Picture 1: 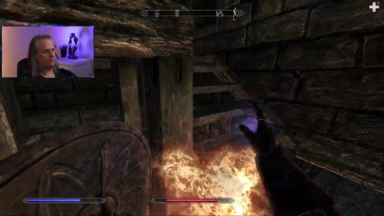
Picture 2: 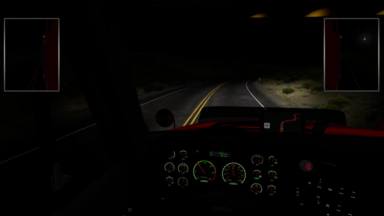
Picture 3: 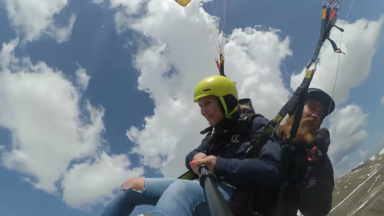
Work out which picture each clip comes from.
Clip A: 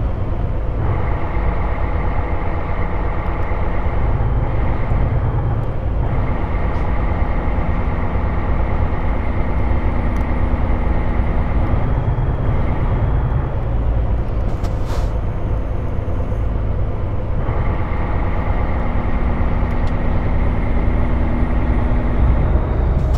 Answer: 2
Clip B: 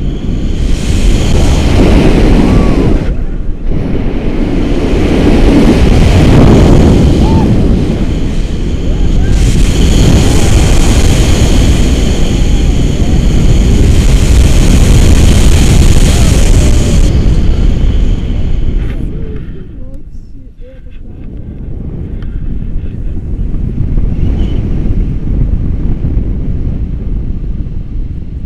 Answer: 3